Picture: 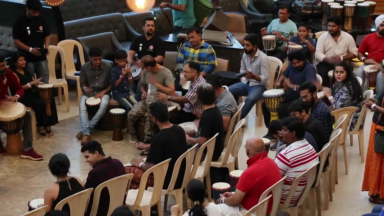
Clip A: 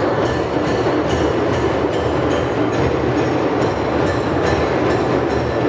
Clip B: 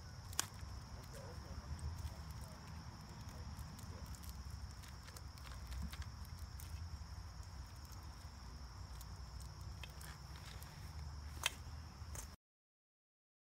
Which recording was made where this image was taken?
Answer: A